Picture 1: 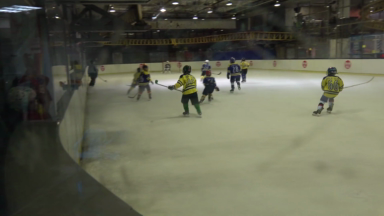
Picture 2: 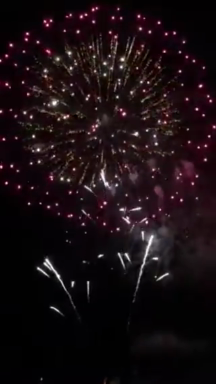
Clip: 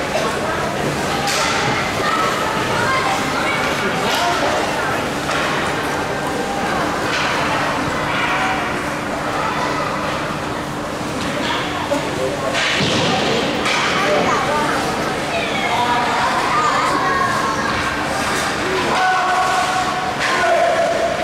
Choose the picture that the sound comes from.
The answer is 1